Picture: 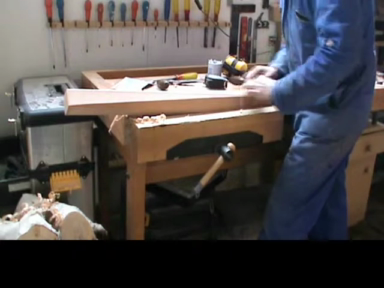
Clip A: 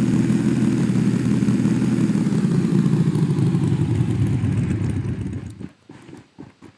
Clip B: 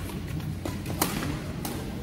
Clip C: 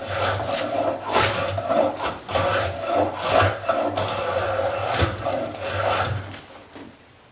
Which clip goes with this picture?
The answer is C